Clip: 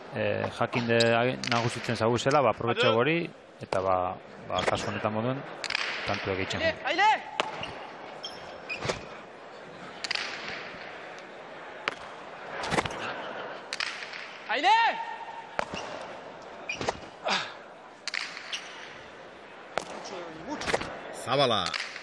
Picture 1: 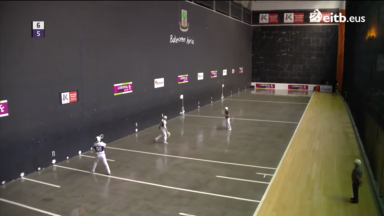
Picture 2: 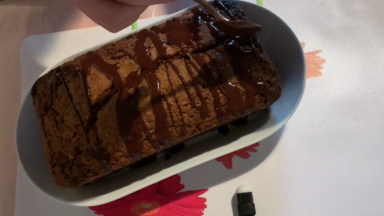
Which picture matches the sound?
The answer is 1